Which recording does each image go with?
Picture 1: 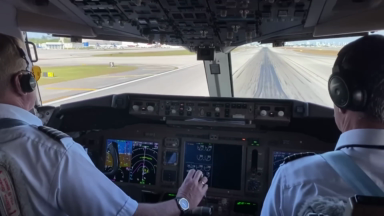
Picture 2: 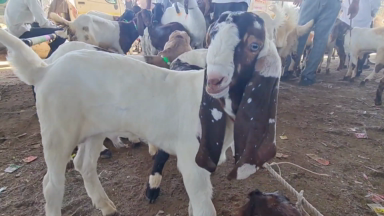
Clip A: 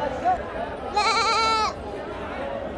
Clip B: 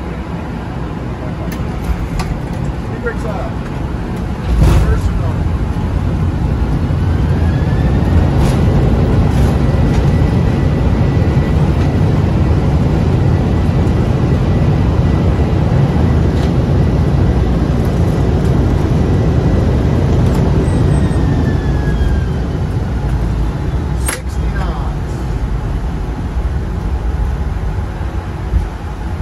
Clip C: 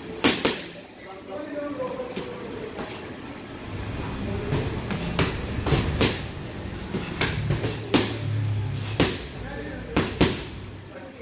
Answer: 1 B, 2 A